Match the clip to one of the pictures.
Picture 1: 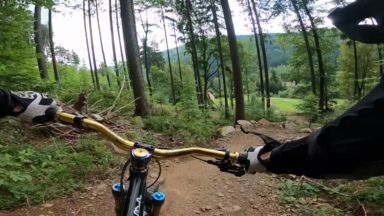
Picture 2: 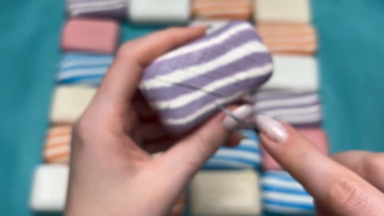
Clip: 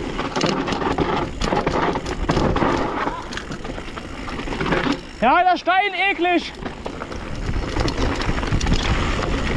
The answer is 1